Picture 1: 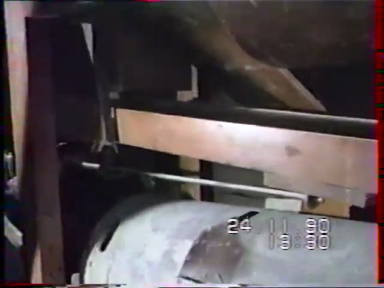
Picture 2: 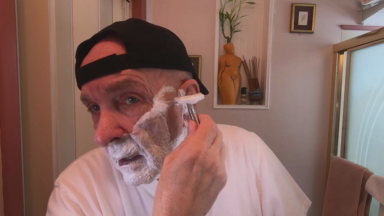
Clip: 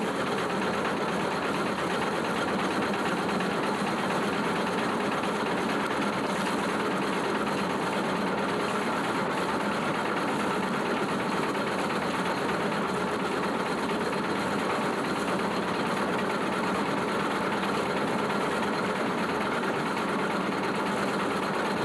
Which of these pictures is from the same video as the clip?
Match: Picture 1